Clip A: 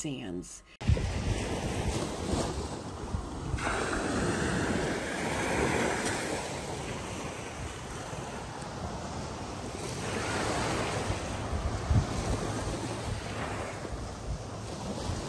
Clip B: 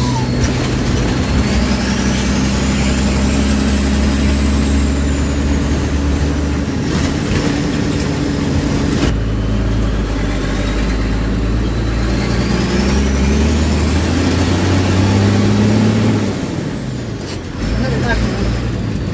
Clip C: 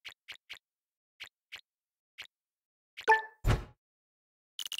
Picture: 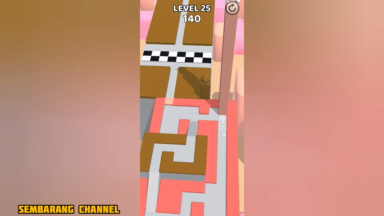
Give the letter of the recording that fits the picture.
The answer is C